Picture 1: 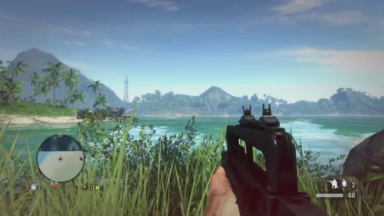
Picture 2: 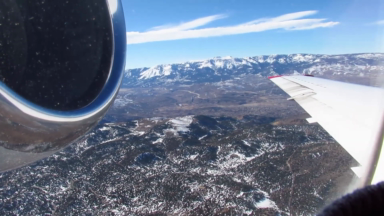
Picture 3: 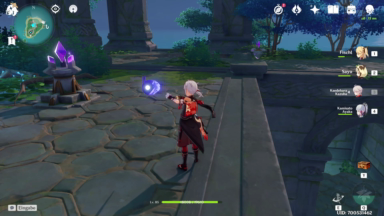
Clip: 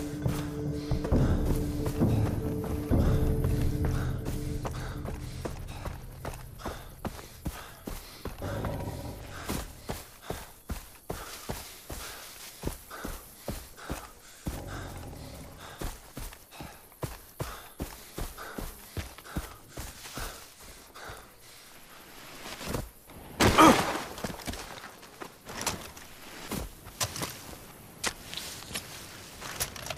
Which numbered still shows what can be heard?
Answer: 1